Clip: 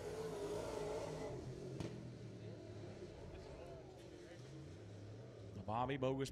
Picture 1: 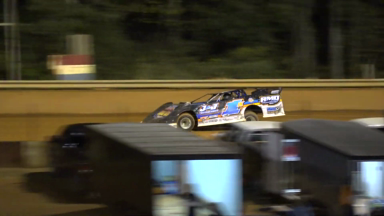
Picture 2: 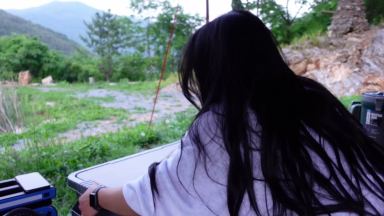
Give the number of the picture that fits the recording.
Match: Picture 1